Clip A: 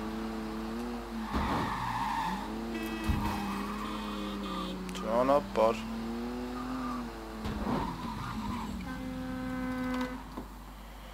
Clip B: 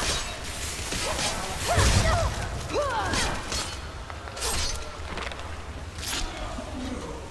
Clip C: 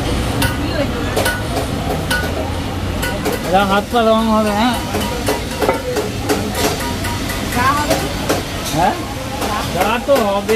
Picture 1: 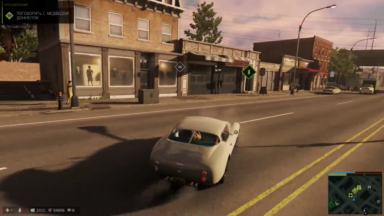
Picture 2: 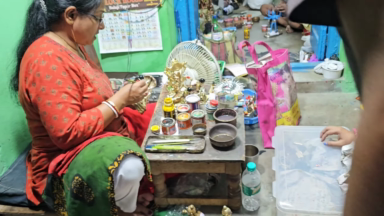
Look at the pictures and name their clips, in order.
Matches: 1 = A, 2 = C